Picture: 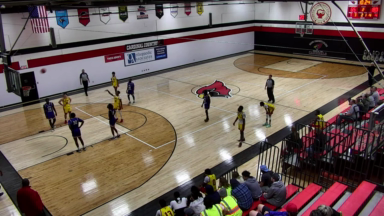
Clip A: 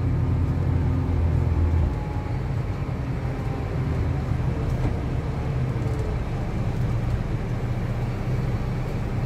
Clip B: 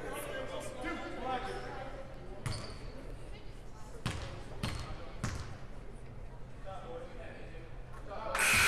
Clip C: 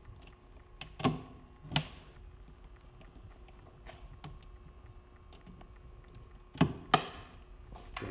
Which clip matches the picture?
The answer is B